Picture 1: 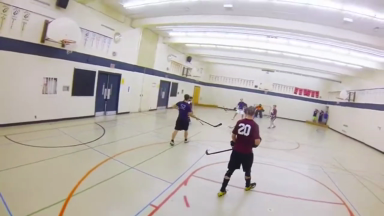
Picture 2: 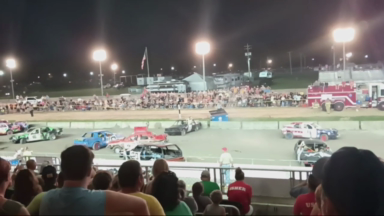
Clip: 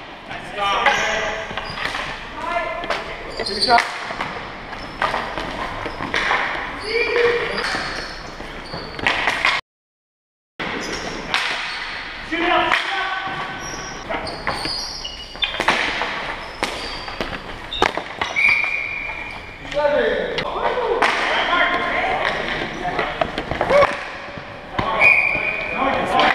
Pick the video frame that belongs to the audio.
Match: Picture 1